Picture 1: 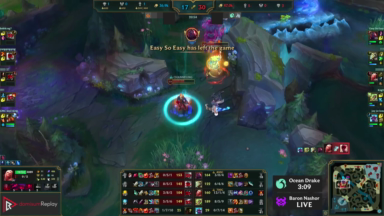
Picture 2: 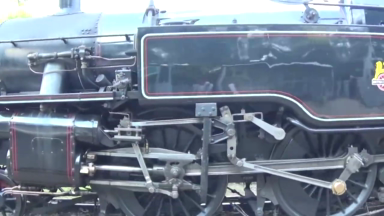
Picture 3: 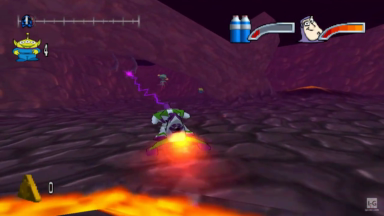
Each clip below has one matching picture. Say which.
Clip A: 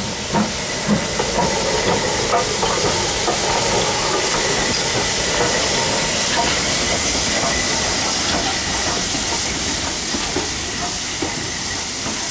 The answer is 2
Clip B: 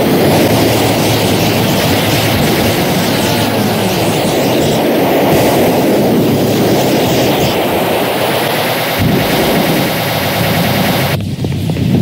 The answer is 3